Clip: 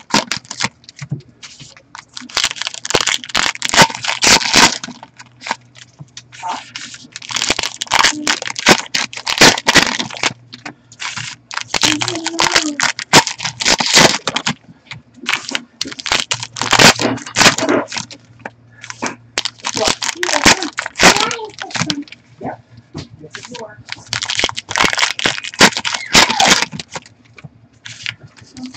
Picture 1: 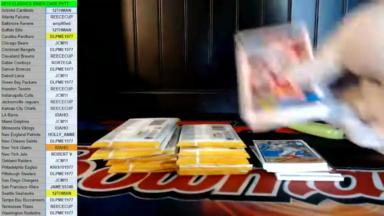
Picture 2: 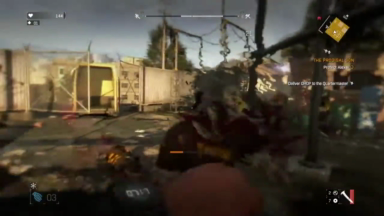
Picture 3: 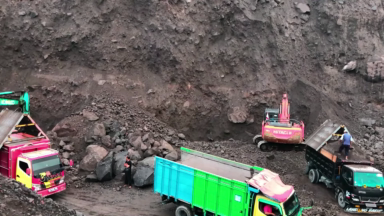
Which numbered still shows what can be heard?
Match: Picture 1